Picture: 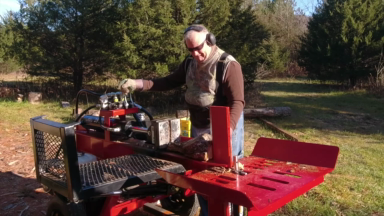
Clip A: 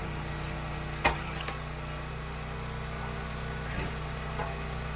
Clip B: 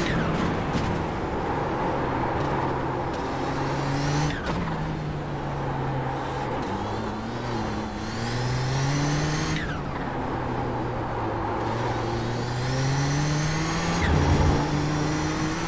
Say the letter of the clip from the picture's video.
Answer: A